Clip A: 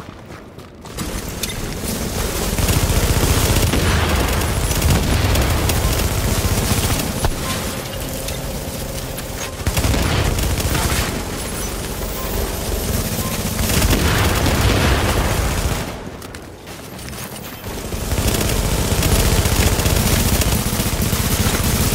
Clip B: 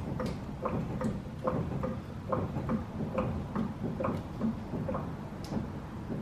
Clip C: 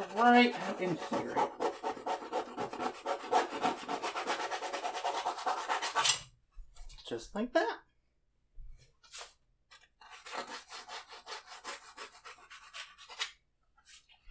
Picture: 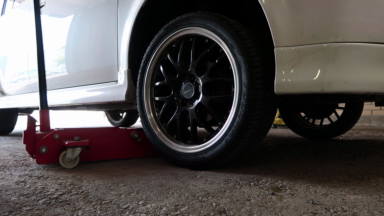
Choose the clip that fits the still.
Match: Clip B